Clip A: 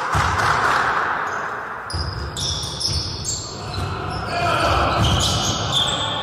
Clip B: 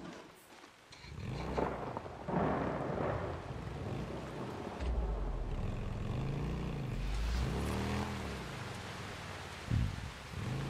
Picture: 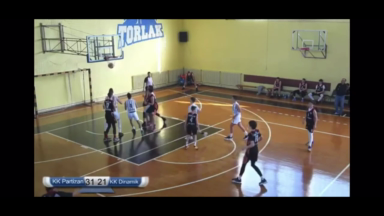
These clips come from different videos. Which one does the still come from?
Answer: A